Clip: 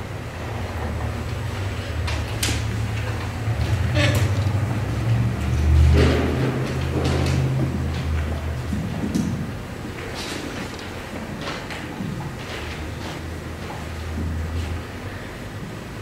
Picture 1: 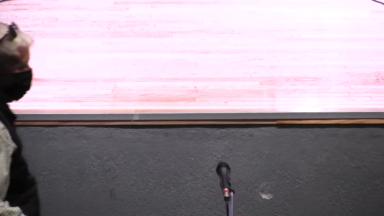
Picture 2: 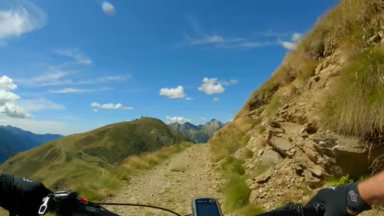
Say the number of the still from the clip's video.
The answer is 1